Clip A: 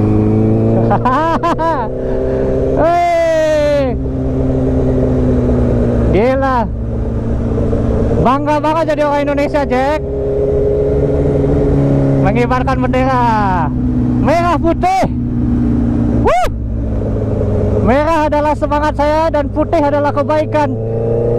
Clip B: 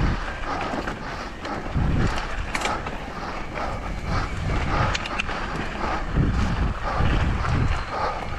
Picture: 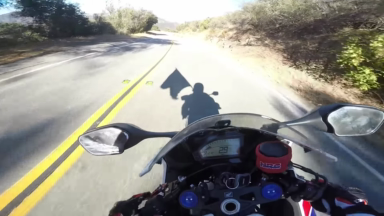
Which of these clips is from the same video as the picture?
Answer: A